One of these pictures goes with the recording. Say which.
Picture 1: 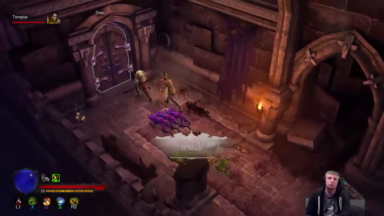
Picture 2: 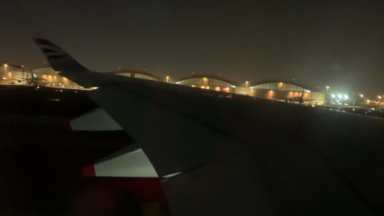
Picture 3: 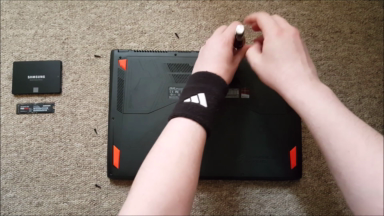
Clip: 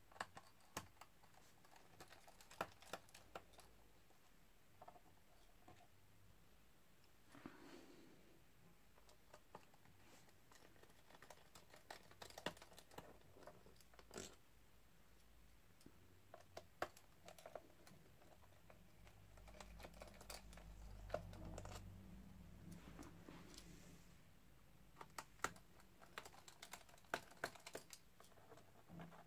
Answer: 3